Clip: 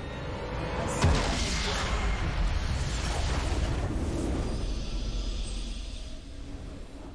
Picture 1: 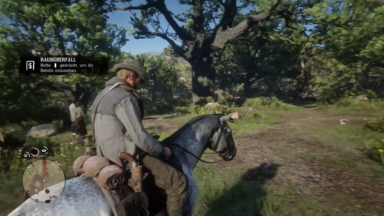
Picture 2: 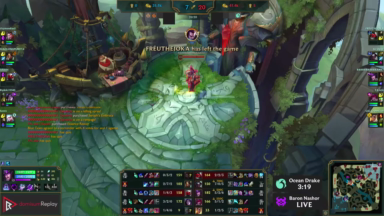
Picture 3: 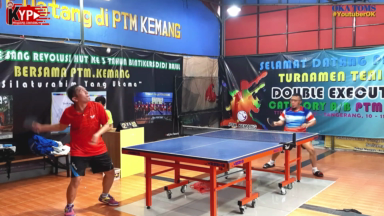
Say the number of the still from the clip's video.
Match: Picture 2